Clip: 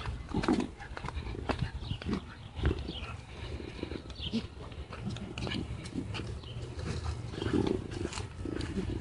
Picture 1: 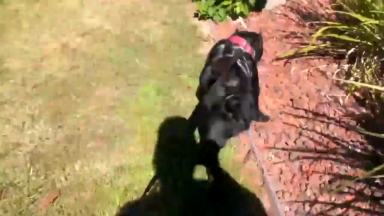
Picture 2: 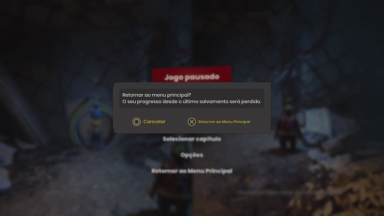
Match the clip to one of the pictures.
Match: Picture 1